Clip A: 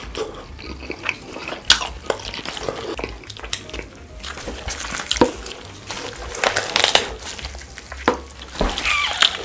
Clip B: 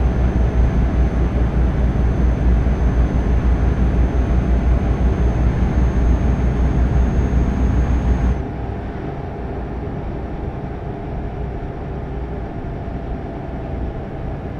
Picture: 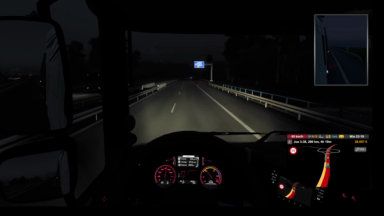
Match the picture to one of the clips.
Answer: B